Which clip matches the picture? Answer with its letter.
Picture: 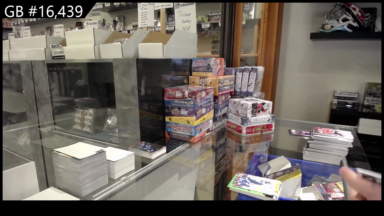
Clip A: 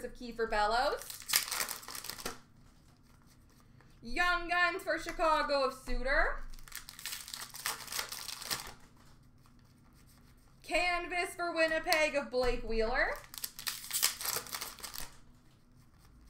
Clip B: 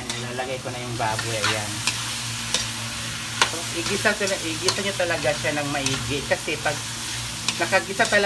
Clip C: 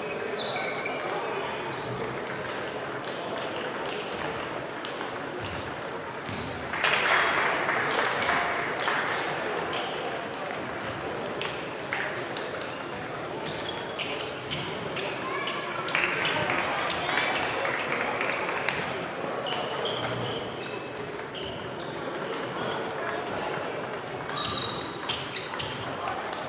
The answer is A